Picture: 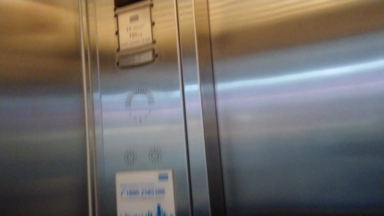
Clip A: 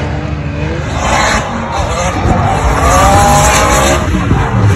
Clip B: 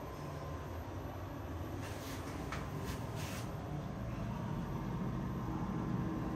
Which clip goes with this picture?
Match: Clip B